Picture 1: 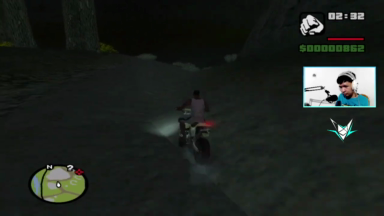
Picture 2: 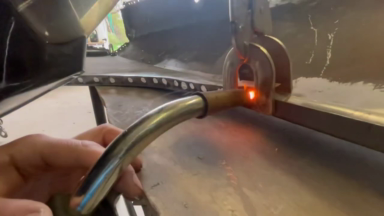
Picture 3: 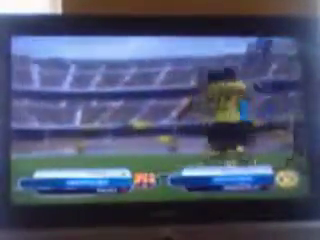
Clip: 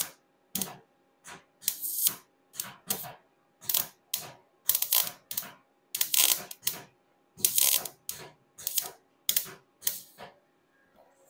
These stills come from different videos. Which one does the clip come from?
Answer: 2